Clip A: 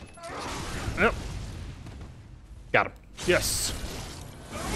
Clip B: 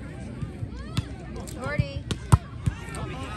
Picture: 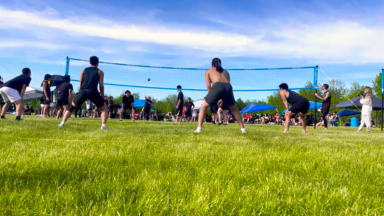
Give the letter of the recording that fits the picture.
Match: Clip B